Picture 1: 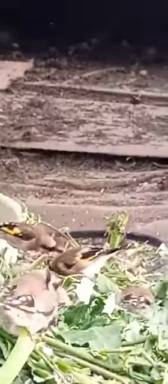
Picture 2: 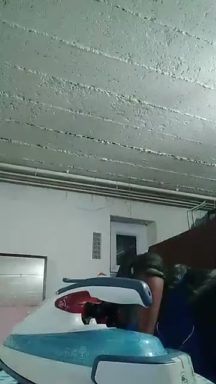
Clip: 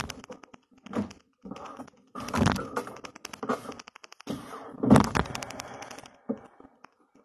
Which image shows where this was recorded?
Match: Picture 2